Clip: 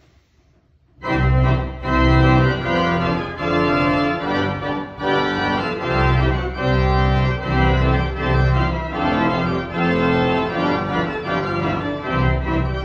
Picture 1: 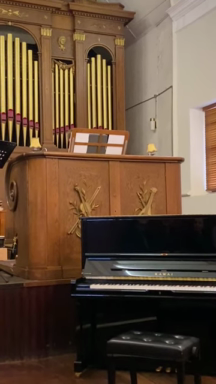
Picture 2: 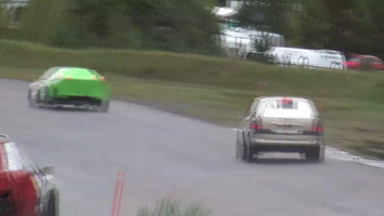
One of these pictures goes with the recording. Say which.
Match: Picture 1